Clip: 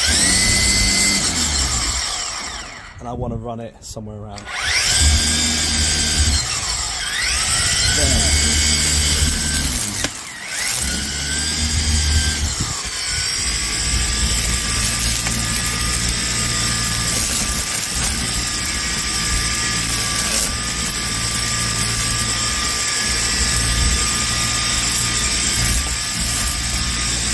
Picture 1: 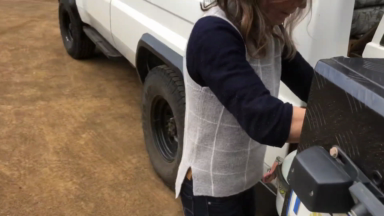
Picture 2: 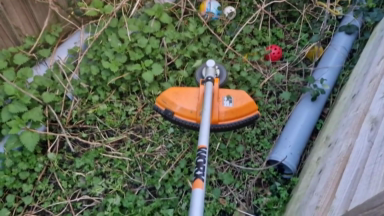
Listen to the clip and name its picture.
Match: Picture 2